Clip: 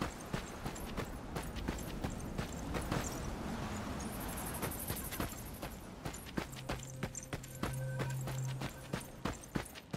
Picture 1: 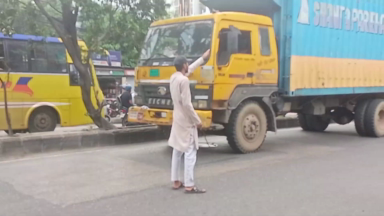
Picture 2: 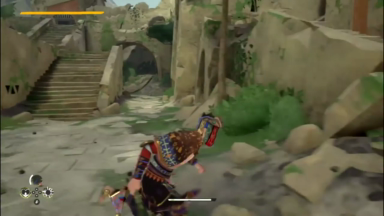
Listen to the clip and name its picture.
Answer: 2